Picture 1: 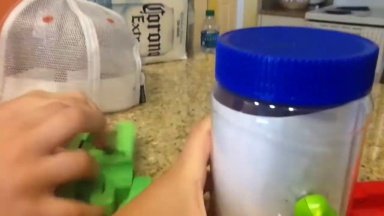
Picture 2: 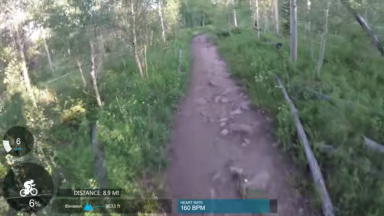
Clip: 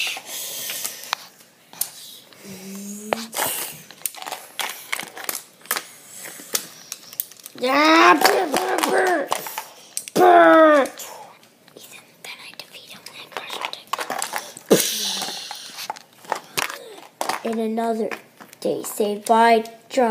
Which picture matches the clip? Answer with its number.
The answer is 1